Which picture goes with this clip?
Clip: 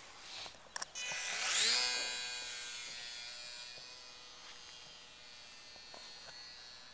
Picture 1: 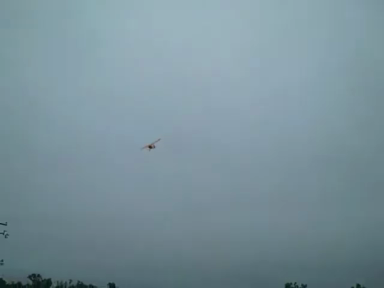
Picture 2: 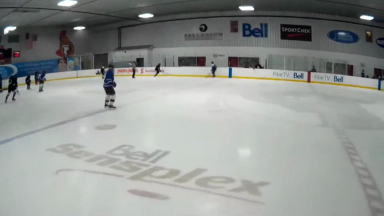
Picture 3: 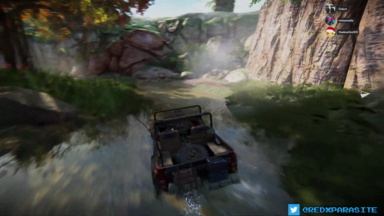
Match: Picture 1